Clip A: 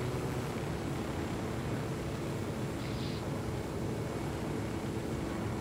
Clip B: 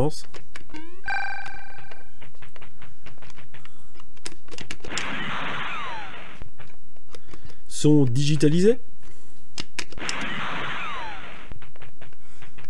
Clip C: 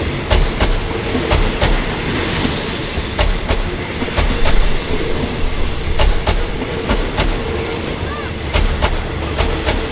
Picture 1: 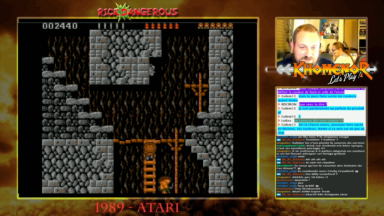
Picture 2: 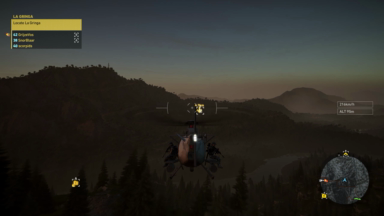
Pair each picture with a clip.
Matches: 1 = B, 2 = A